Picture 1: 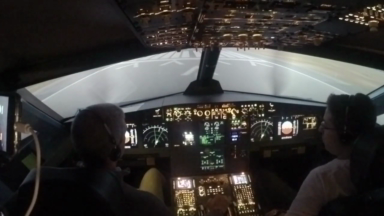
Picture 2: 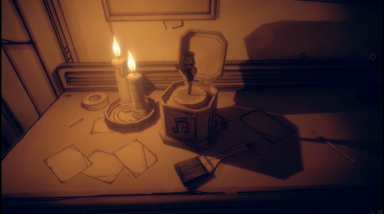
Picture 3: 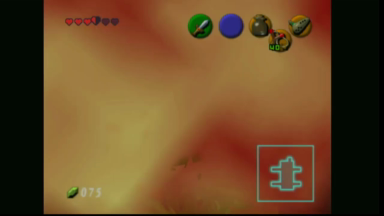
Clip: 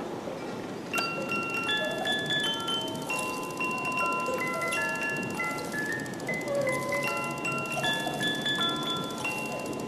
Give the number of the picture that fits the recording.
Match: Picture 2